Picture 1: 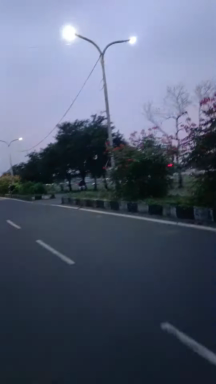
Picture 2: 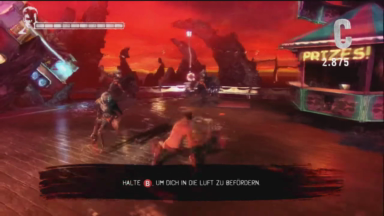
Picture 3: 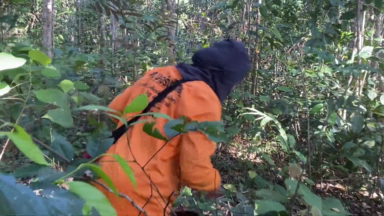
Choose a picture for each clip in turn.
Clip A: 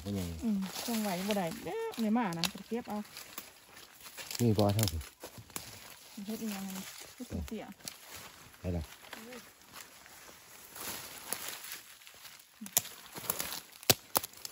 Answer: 3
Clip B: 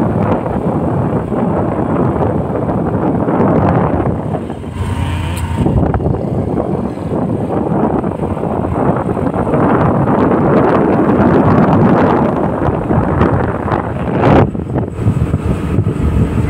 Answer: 1